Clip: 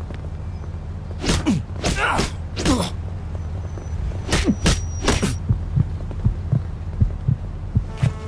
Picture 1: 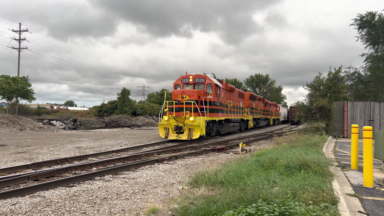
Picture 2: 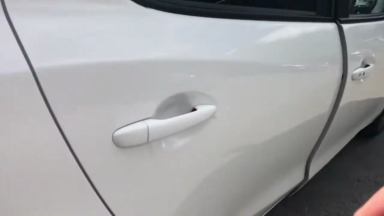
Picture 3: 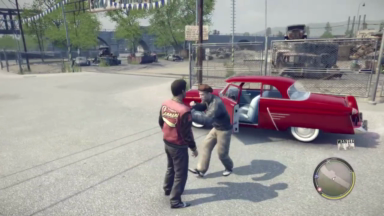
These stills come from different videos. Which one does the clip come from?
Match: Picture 3